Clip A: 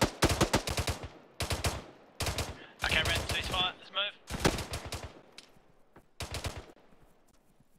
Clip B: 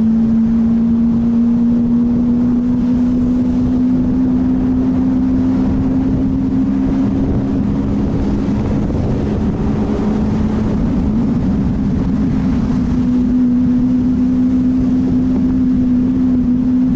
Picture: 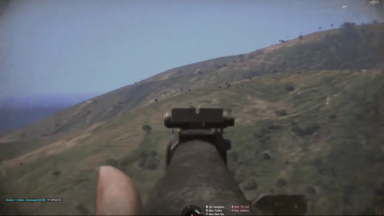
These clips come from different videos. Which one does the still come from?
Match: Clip A